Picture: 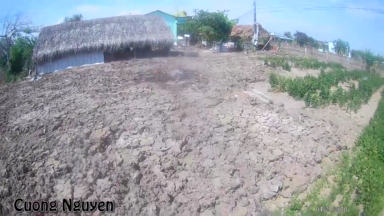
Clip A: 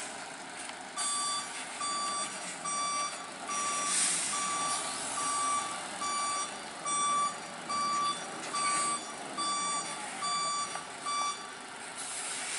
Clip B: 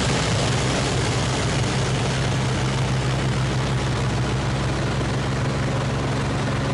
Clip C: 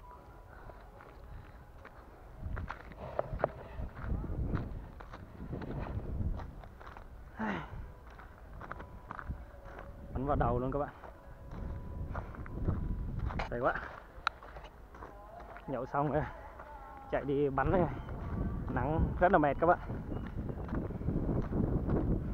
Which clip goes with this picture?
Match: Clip C